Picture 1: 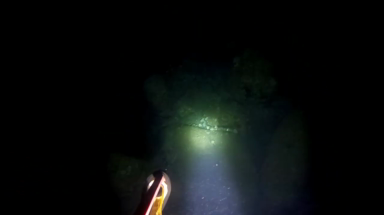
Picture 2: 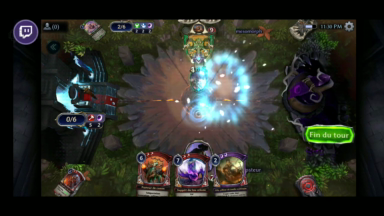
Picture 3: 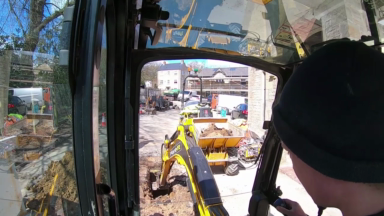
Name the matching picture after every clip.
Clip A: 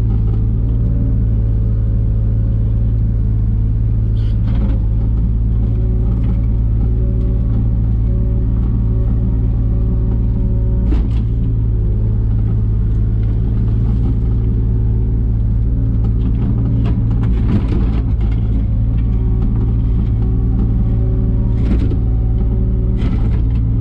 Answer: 3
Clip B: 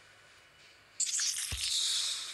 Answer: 2